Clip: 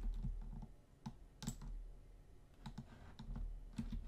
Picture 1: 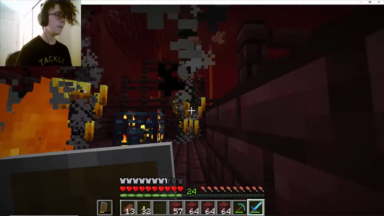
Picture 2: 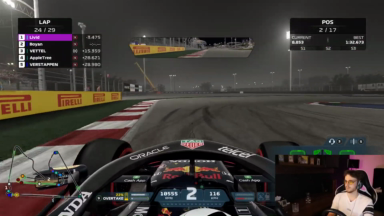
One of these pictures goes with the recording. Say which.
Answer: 1